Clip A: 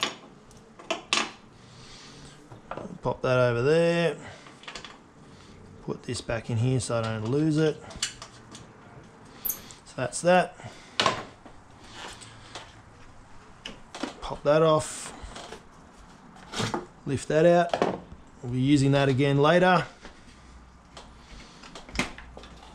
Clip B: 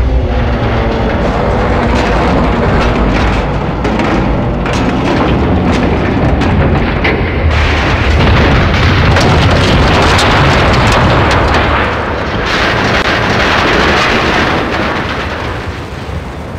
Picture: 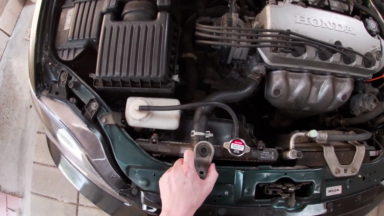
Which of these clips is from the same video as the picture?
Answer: A